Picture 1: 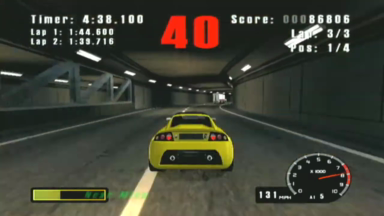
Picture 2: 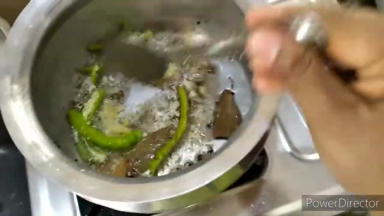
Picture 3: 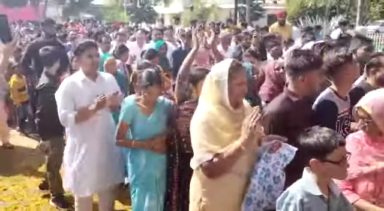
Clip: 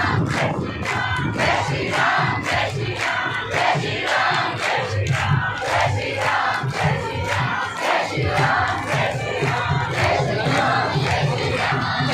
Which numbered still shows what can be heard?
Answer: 3